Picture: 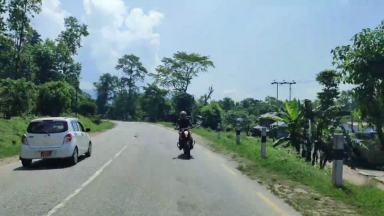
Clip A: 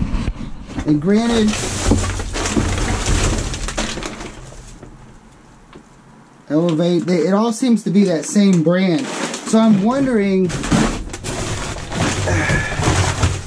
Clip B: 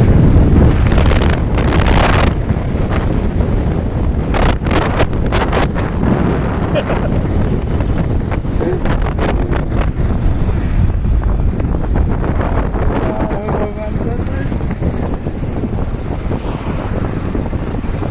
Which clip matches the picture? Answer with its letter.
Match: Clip B